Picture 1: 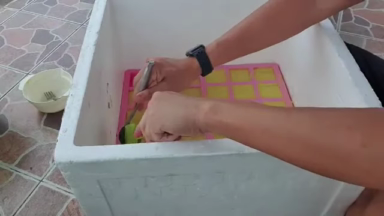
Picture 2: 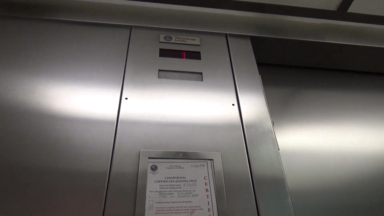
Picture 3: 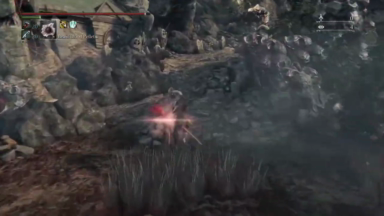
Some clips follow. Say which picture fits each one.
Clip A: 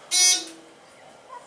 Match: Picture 2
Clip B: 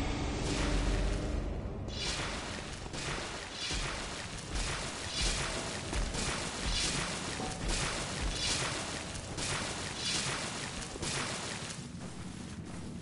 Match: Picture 3